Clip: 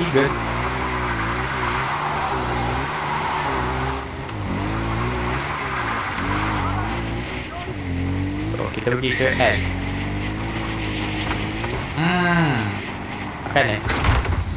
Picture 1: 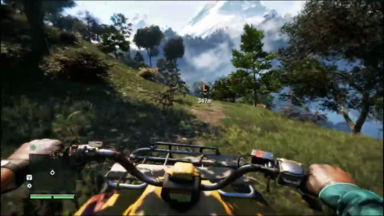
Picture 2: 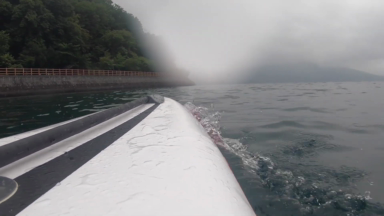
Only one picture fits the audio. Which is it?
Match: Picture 1